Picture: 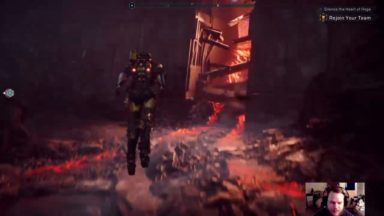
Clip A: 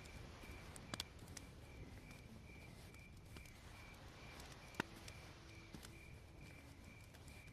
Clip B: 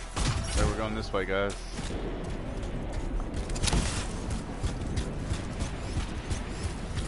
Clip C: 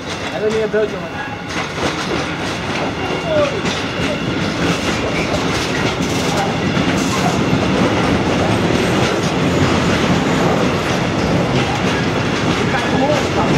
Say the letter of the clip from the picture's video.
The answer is B